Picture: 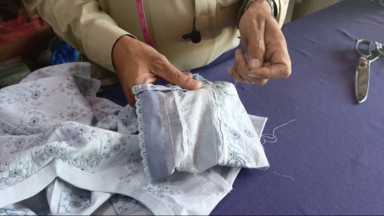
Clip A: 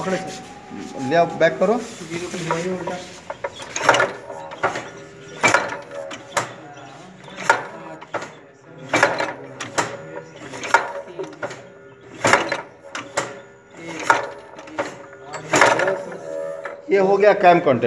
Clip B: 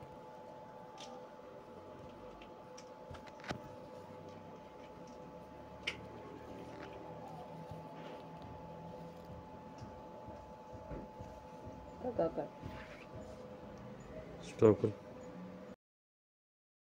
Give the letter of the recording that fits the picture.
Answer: B